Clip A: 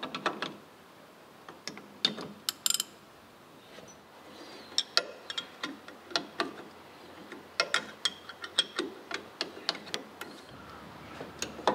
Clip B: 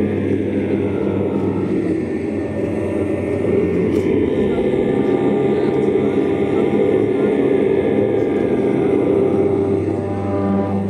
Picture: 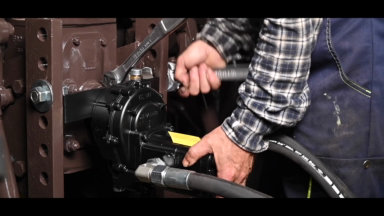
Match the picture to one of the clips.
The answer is A